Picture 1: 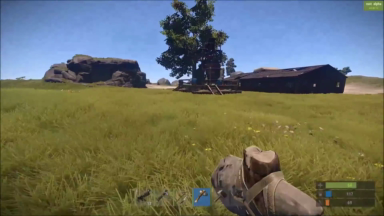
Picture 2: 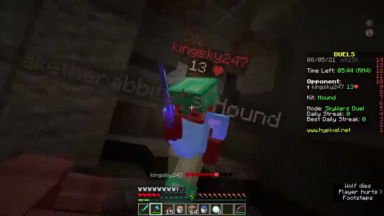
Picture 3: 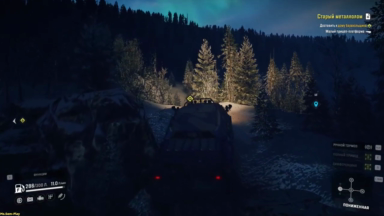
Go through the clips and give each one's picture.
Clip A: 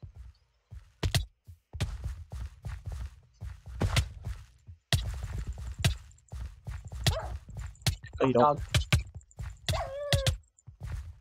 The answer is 2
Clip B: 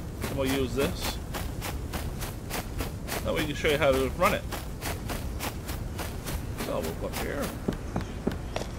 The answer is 1